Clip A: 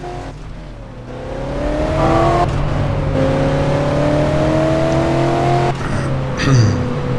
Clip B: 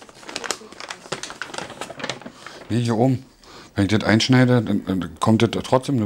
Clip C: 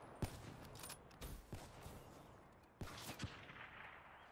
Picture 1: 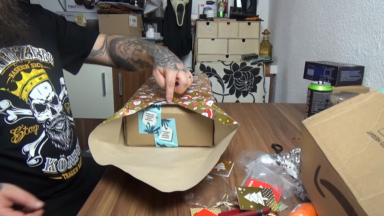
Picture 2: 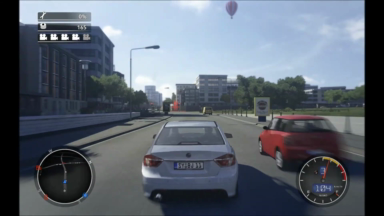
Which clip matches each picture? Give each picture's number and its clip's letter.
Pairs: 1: B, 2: A